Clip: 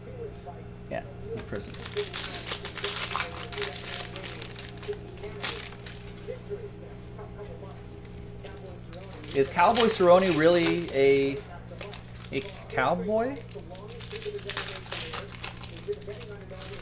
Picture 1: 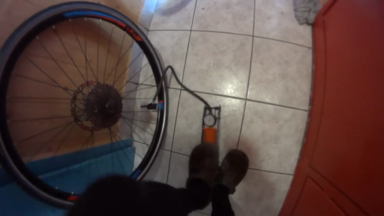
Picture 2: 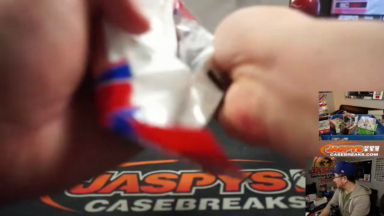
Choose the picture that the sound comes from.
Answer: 2